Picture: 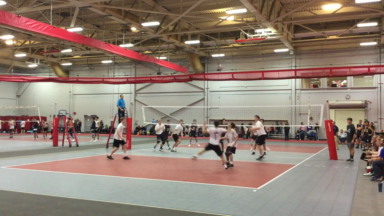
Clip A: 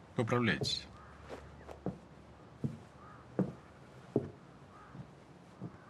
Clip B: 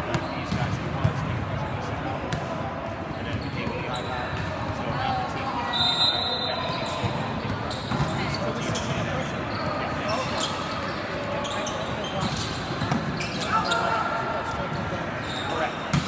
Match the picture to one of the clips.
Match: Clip B